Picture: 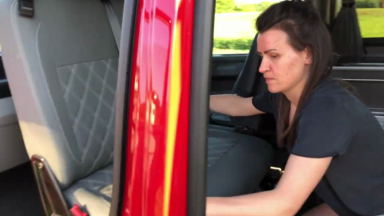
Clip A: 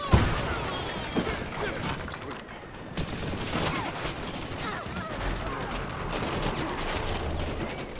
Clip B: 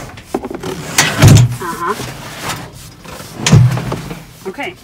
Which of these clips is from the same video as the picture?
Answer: B